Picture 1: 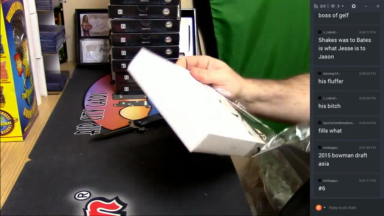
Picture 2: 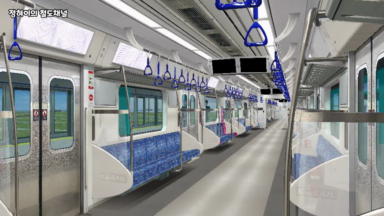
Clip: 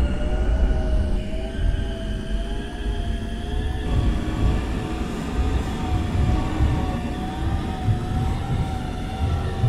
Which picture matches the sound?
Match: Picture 2